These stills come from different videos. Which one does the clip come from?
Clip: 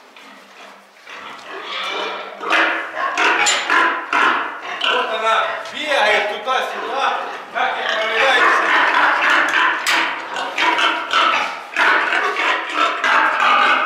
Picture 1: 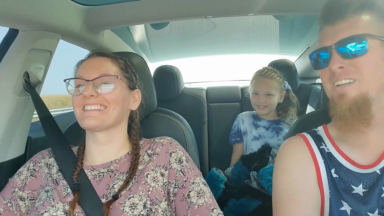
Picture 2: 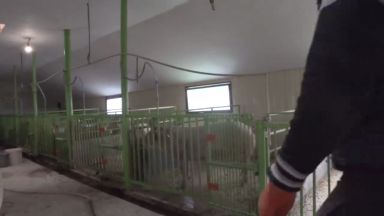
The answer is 2